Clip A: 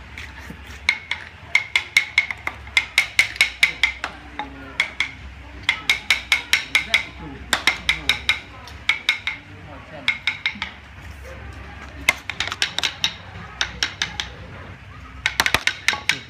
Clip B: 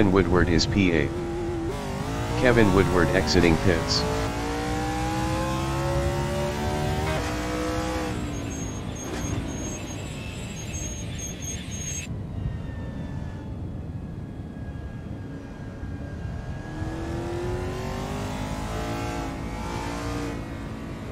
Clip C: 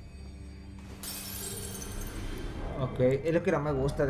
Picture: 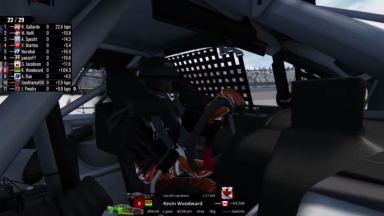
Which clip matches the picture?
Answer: B